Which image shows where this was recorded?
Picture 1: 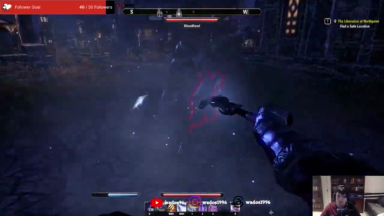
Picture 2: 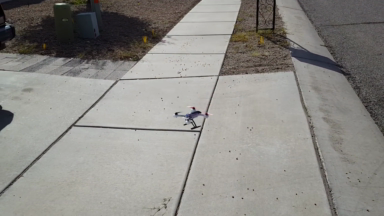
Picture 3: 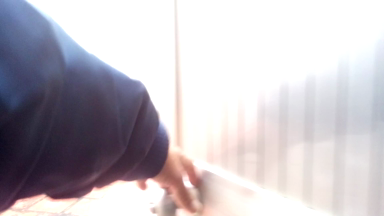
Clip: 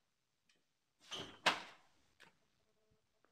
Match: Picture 3